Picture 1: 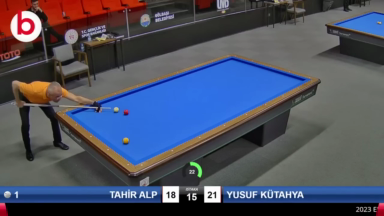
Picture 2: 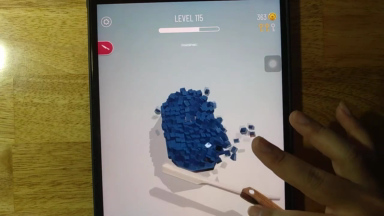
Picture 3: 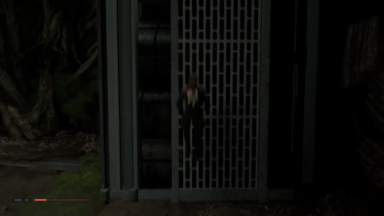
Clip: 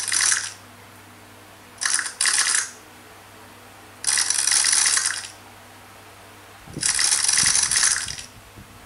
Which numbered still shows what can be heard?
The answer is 2